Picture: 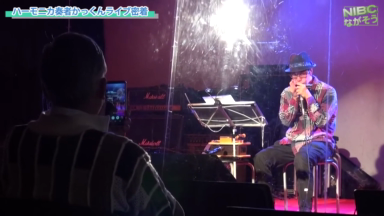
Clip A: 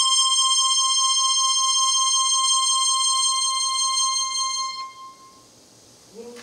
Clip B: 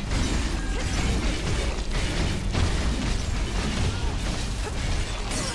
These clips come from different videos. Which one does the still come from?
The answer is A